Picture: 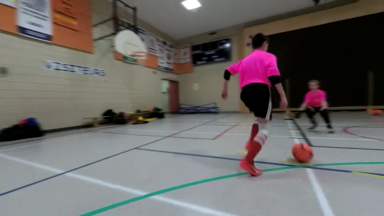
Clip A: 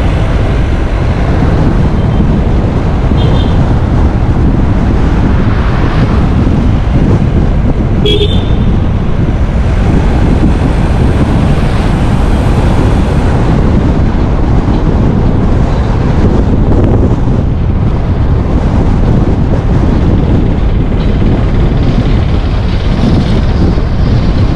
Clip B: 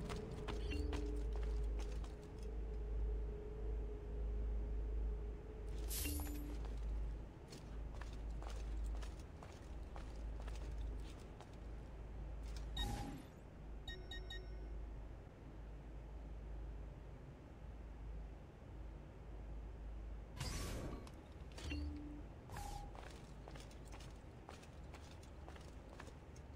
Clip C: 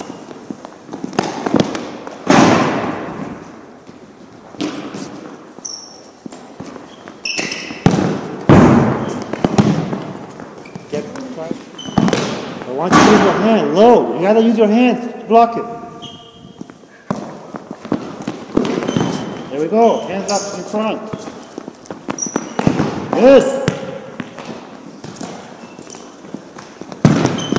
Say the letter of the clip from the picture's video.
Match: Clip C